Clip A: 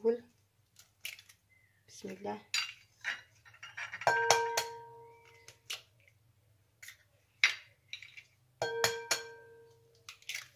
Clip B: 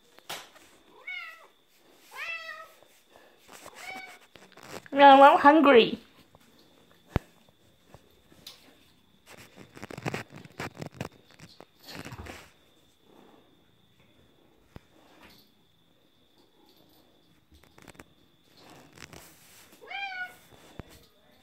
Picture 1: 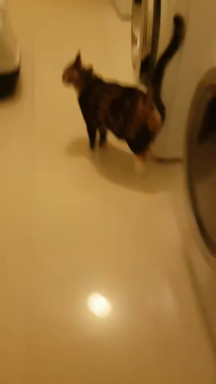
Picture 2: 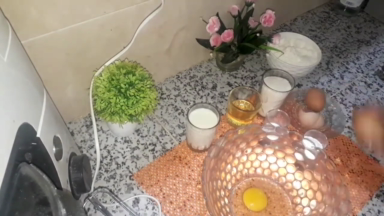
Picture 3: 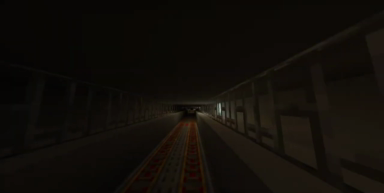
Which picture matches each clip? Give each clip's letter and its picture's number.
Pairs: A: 2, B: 1